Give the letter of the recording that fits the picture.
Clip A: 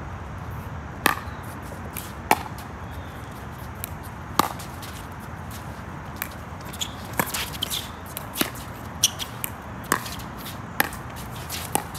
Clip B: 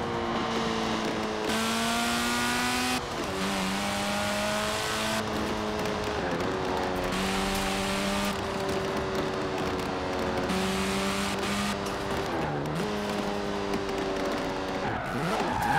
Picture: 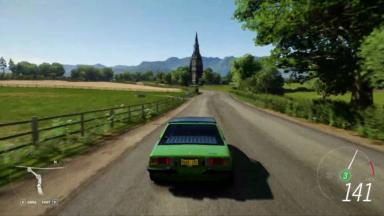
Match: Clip B